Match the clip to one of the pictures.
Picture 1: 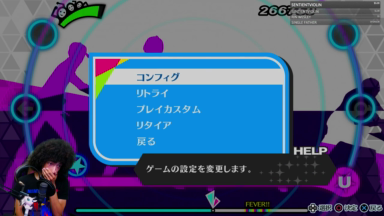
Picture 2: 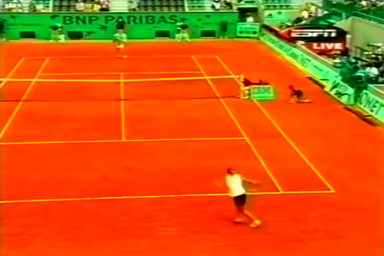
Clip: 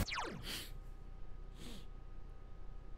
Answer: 1